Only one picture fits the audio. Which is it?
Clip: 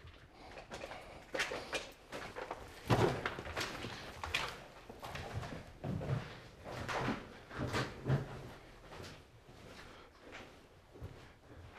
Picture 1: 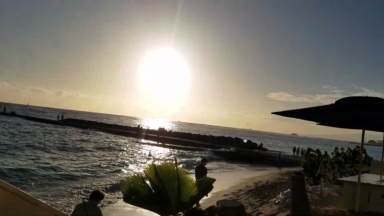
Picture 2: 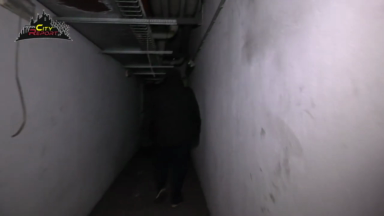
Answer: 2